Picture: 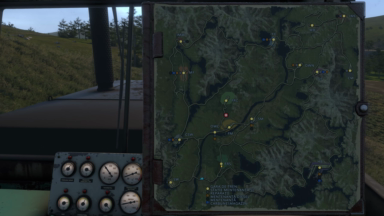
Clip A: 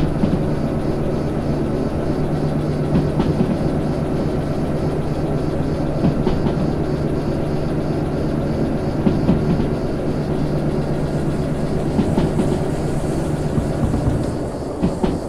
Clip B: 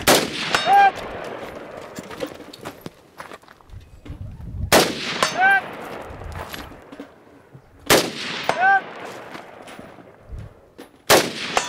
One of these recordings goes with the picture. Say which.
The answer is A